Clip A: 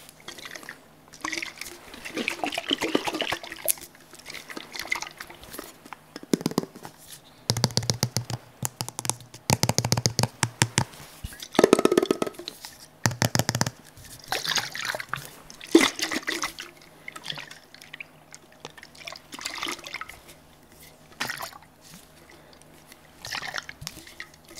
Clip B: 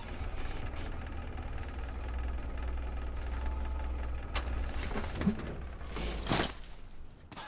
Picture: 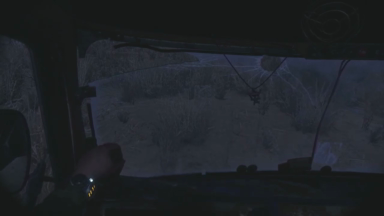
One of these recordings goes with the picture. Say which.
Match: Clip B